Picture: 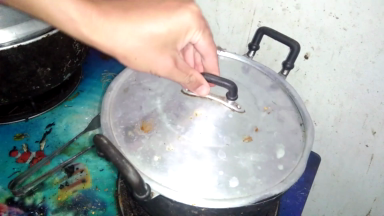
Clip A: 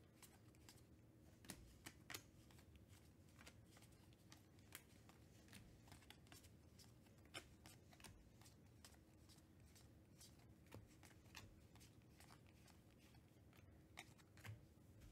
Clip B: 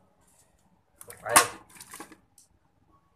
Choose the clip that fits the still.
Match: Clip B